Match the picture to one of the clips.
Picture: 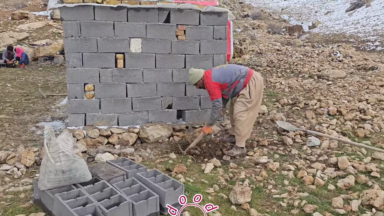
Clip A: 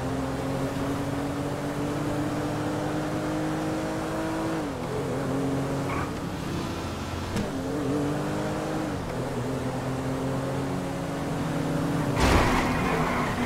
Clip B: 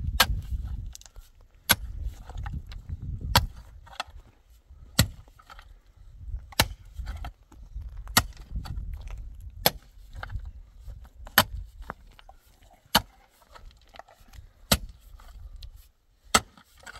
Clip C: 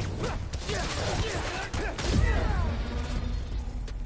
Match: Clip B